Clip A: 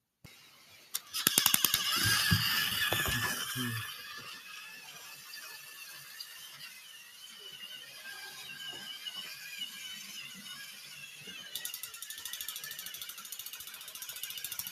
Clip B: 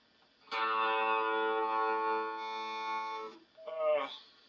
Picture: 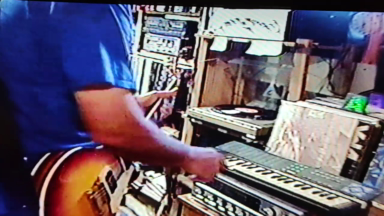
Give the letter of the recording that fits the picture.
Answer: B